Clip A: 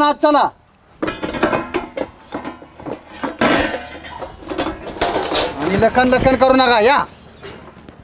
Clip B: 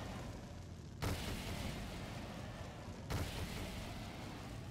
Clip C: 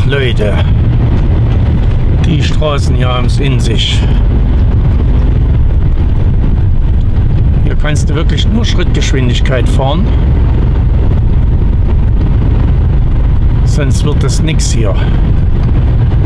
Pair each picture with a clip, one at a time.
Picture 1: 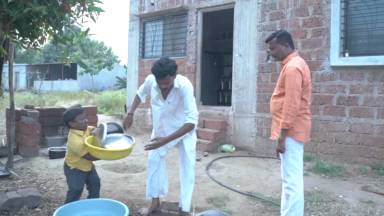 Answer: A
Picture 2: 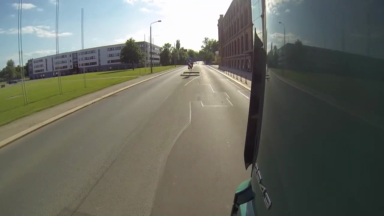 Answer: C